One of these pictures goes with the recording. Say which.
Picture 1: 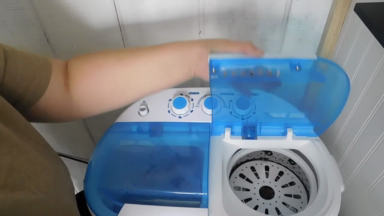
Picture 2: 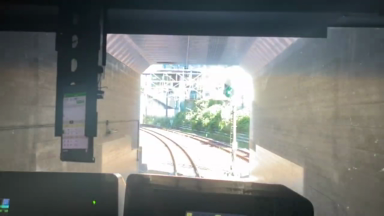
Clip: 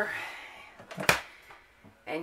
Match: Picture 1